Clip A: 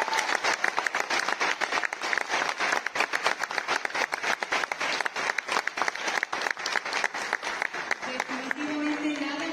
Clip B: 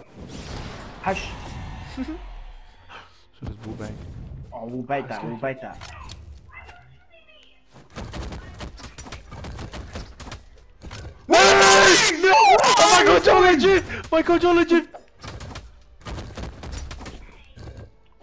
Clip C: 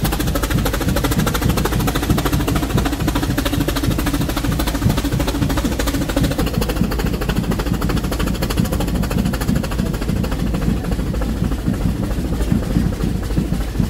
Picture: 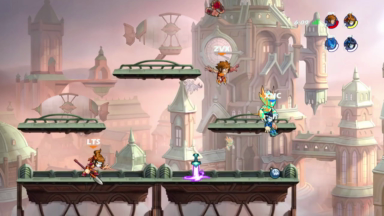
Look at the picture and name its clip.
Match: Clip B